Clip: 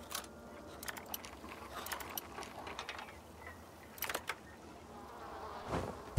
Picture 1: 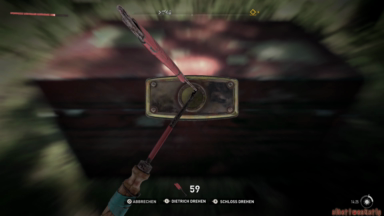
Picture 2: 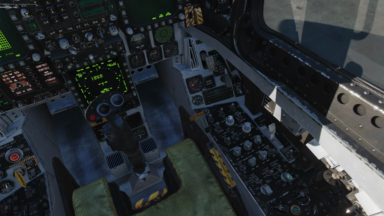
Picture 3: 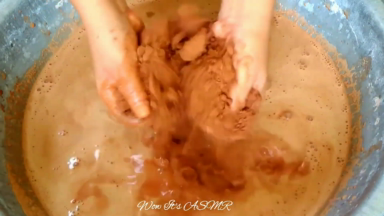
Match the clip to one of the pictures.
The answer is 1